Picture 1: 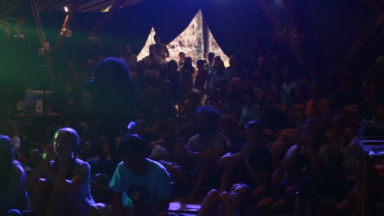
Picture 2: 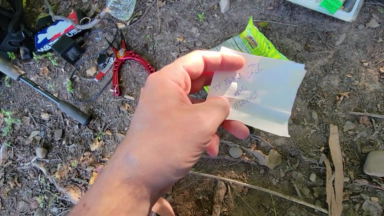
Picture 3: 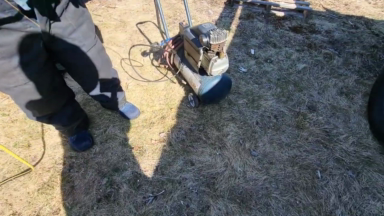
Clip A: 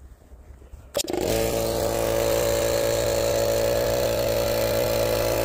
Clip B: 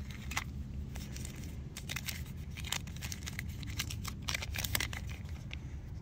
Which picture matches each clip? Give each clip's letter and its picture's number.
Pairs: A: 3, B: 2